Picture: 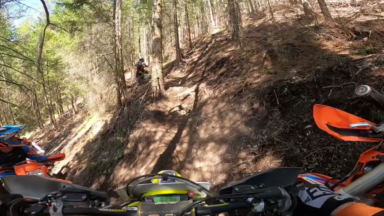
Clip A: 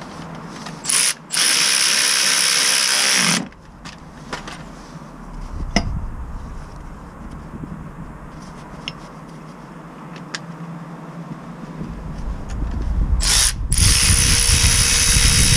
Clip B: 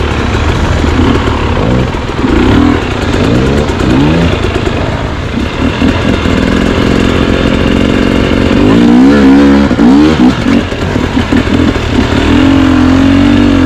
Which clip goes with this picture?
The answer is B